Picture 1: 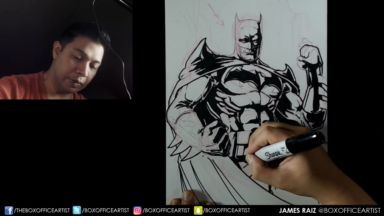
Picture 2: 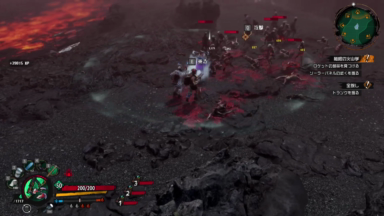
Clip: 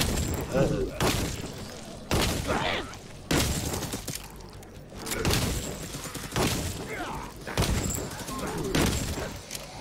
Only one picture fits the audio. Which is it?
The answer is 2